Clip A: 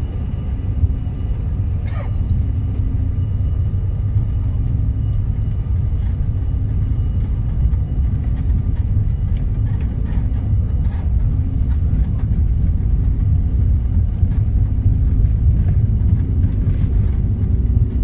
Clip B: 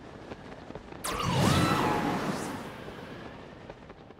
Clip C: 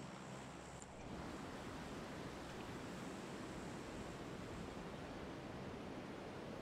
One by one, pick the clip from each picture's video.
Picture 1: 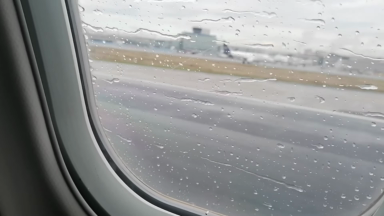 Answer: A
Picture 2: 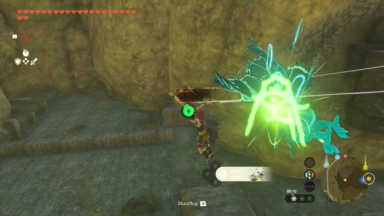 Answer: B